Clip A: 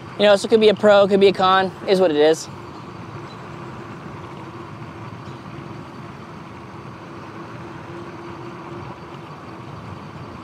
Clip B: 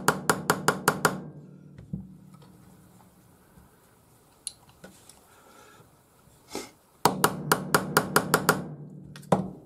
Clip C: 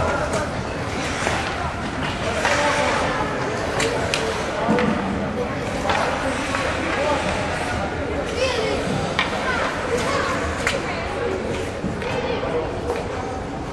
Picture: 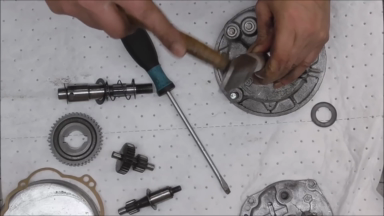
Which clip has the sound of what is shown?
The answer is B